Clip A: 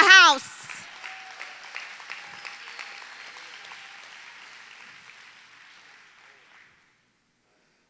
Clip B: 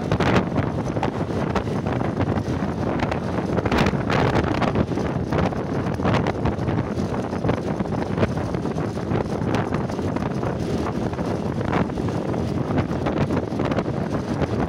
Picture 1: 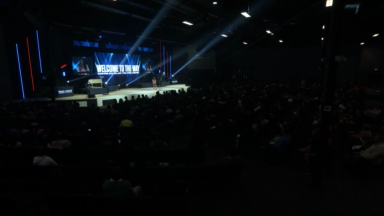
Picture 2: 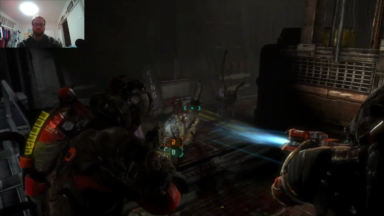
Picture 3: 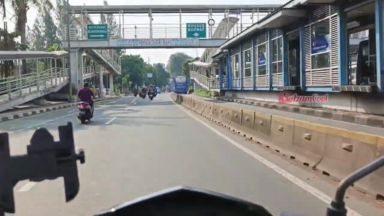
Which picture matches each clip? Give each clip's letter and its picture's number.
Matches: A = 1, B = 3